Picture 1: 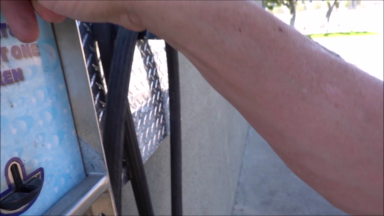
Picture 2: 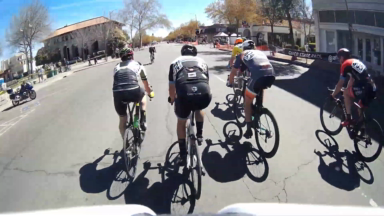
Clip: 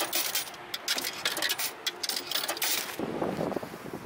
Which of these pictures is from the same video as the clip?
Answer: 1